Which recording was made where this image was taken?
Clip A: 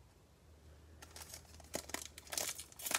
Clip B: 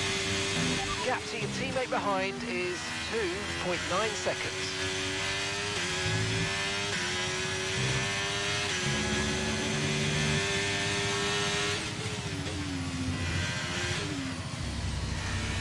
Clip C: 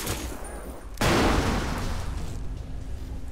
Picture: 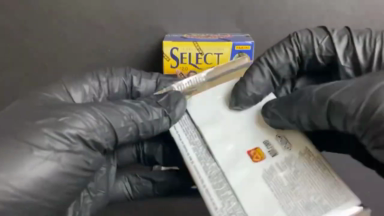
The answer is A